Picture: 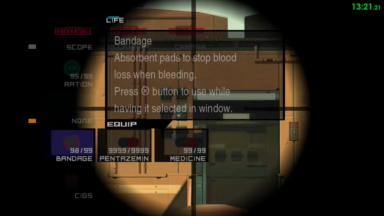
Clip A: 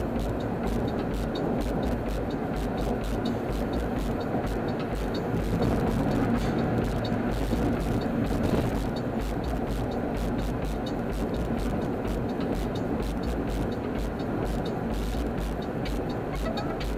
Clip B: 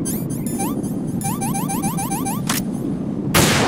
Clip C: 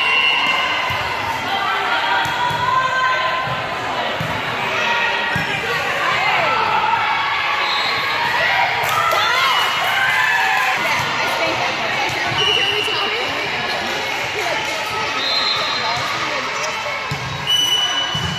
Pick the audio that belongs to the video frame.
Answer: B